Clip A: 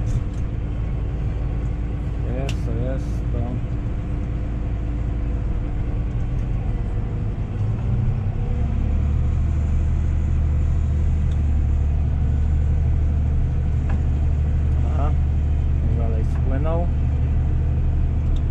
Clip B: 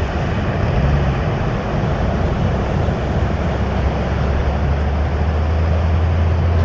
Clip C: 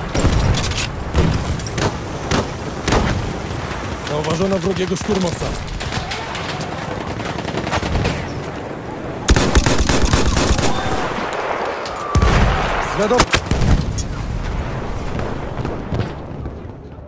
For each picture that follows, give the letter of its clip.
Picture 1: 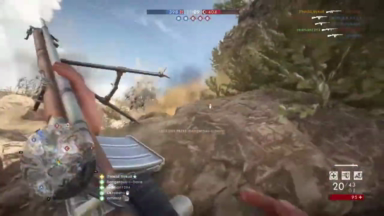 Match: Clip C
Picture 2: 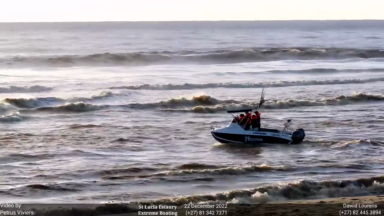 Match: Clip B